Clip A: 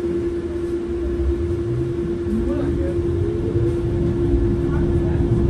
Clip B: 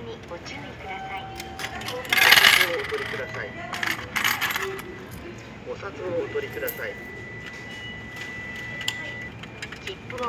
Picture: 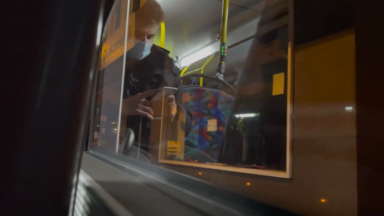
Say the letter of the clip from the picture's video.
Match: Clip A